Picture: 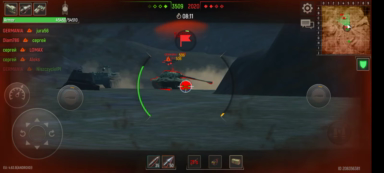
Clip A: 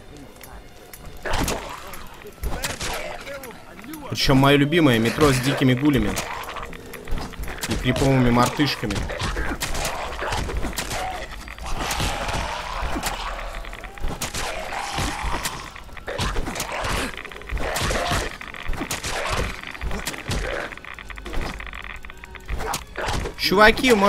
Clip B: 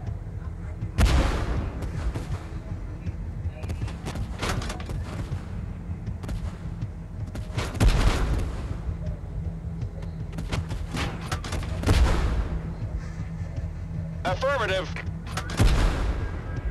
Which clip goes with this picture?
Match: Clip B